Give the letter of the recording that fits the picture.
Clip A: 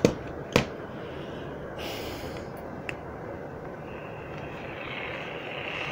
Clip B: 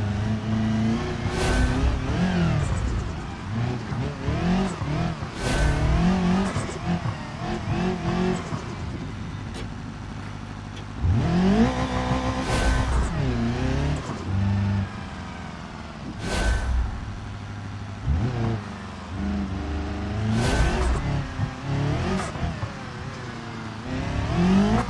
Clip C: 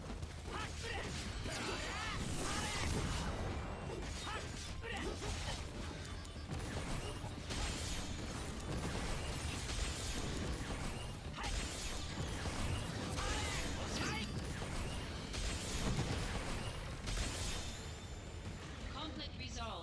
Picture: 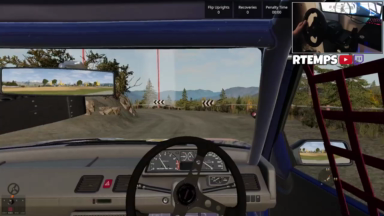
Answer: B